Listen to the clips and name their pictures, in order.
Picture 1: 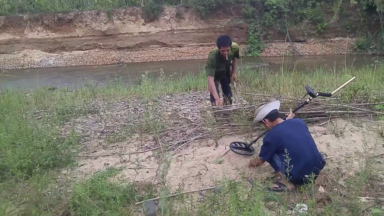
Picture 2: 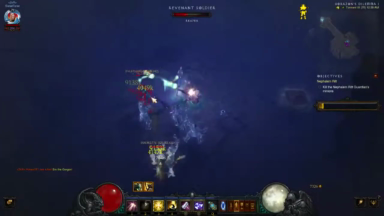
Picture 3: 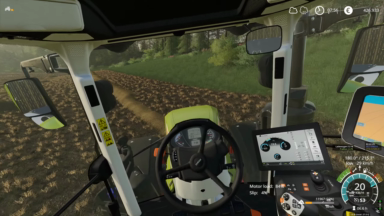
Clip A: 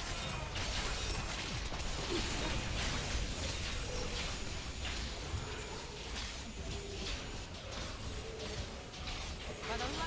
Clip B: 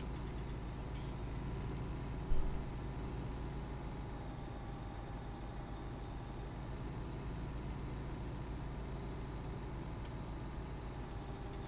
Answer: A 2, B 3